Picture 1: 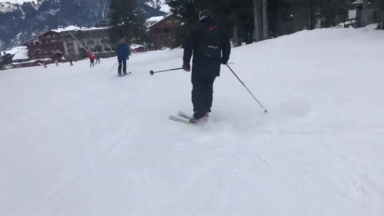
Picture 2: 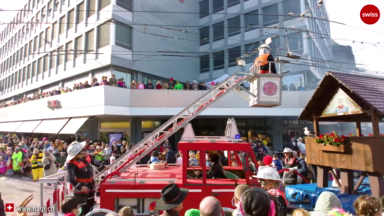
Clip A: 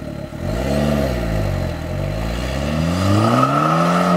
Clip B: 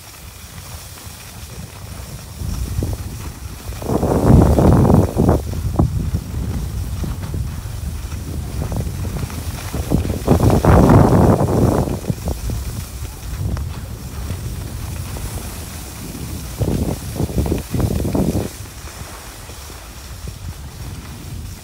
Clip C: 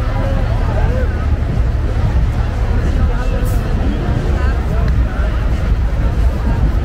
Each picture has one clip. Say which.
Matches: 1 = B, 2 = C